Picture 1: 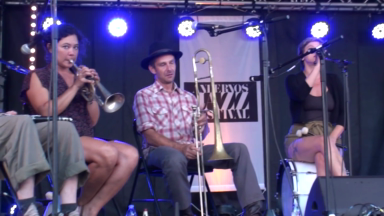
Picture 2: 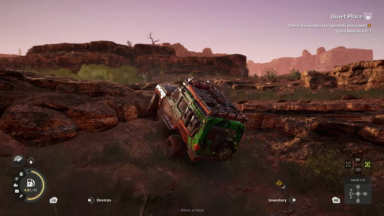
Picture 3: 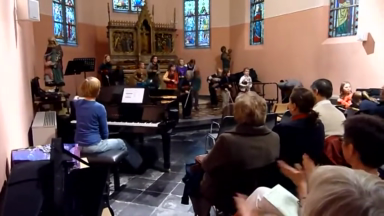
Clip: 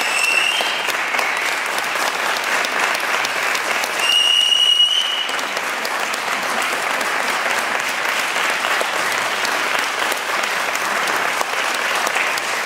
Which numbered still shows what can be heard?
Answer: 3